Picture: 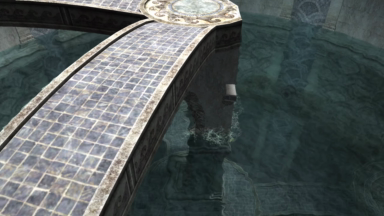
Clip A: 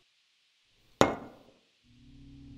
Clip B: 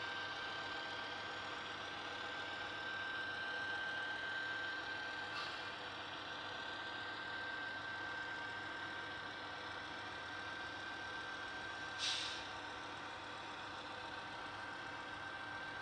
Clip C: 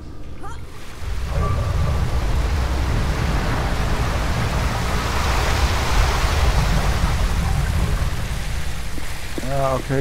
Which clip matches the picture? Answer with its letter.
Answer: C